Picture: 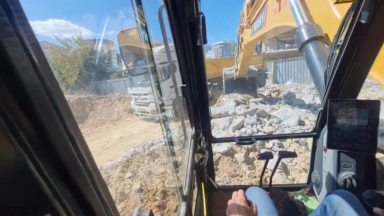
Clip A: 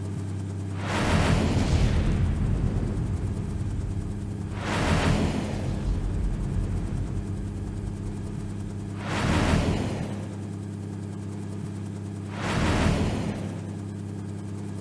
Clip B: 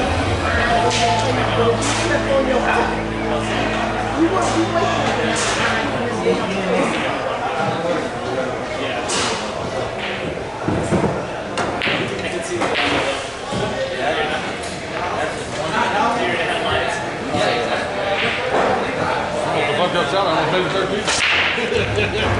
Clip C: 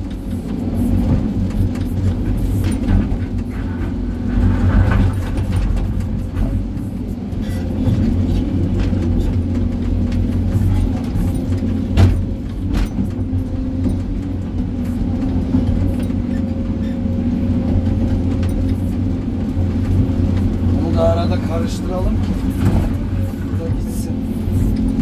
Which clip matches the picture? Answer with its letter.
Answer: C